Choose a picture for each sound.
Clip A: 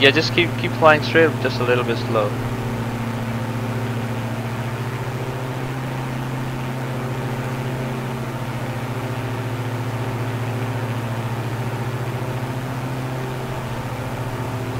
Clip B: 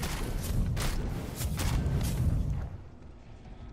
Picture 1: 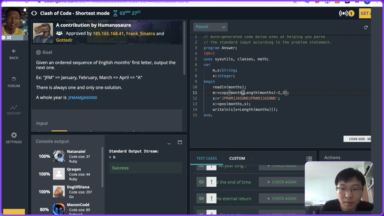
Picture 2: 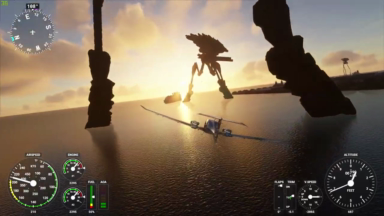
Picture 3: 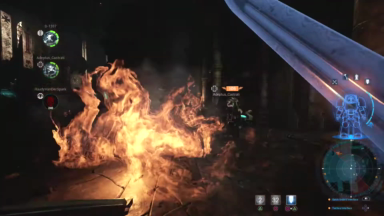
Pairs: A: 2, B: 3